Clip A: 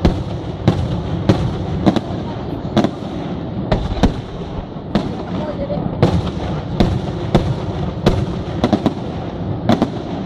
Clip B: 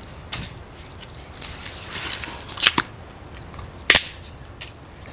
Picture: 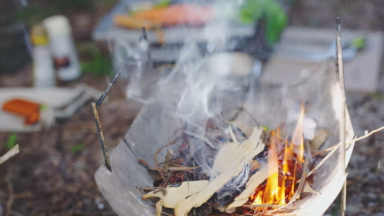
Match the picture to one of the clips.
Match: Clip B